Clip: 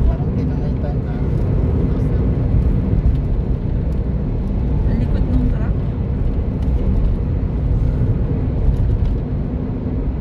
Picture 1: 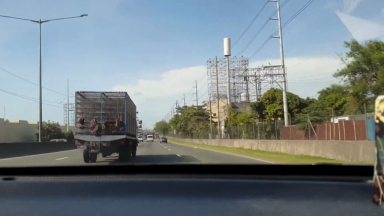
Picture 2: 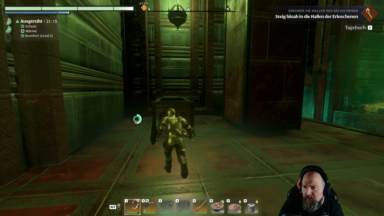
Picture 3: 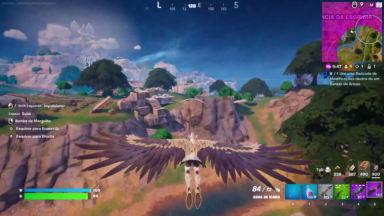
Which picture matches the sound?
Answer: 1